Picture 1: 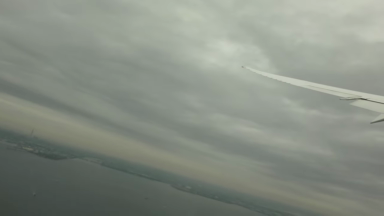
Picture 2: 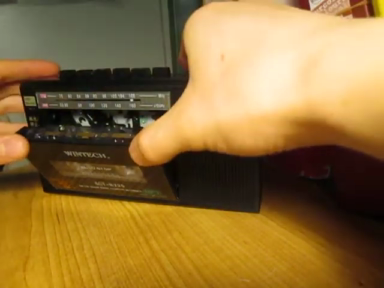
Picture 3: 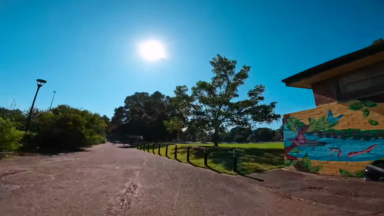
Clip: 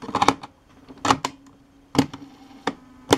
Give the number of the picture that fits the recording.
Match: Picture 2